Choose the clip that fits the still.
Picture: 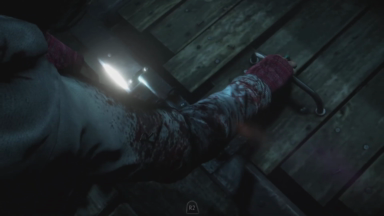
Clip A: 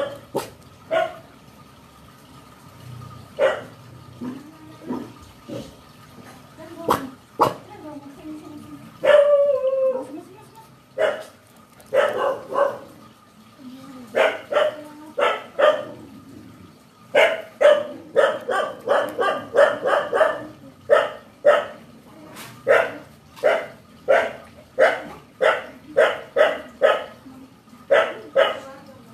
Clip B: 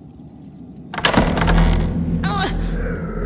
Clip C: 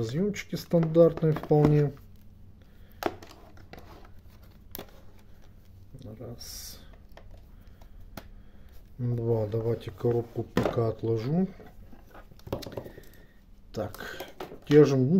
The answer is B